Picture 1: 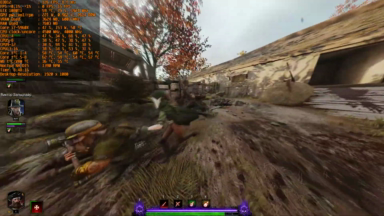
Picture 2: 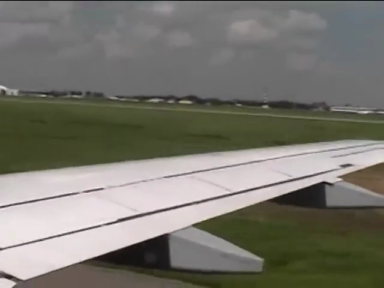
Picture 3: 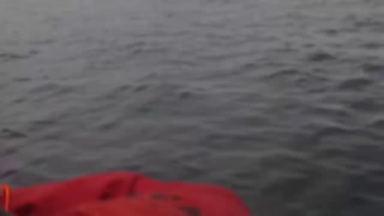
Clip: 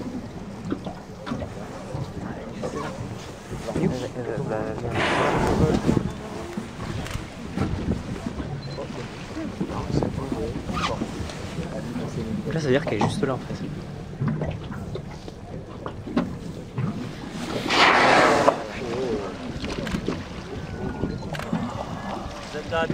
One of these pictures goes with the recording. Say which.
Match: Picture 3